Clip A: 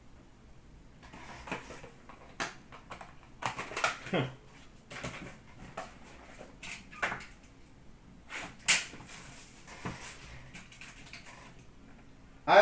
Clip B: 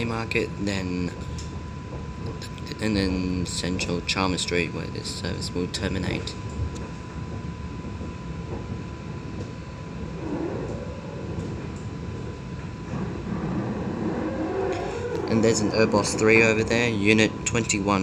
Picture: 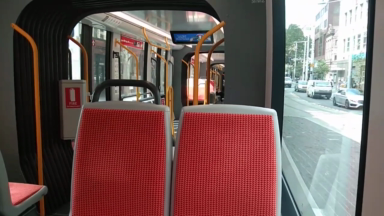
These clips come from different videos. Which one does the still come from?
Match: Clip B